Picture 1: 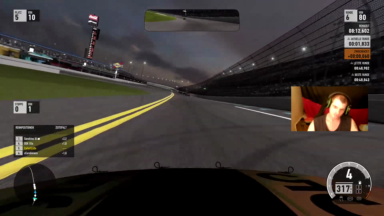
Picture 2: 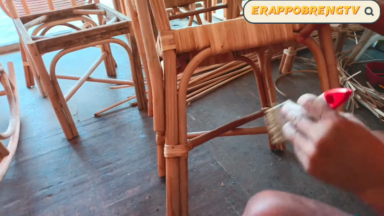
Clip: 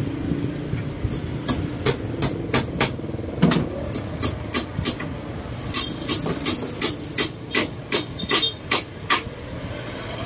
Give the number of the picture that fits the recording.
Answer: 2